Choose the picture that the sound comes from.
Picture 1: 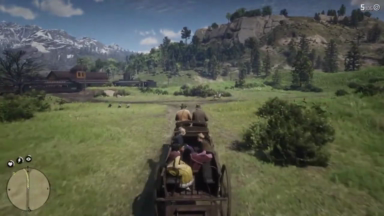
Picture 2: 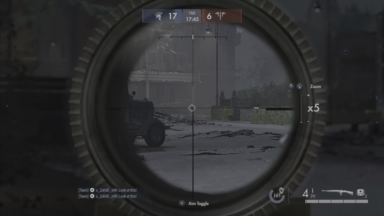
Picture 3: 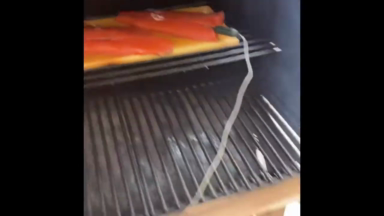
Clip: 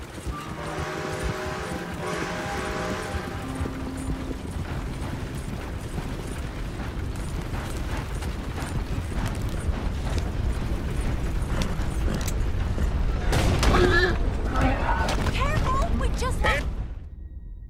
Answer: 1